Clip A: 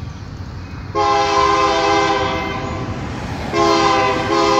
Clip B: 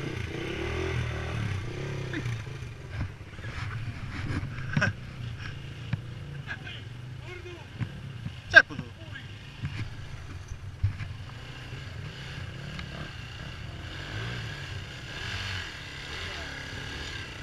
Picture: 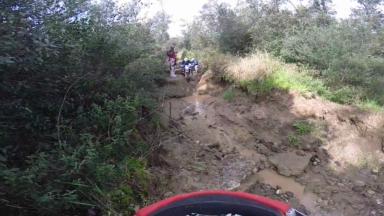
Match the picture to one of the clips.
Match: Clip B